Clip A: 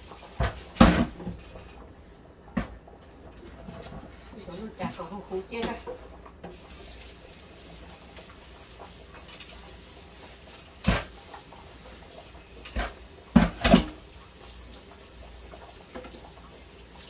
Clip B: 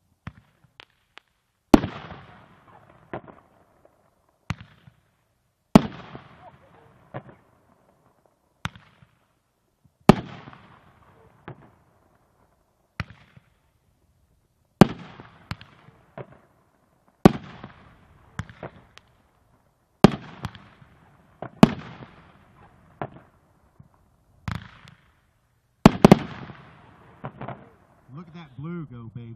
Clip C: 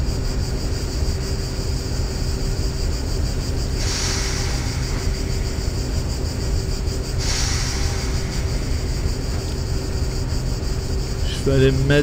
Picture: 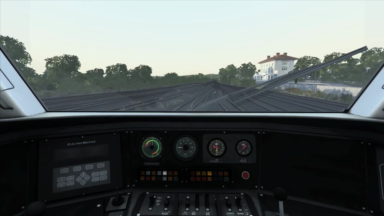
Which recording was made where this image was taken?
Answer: C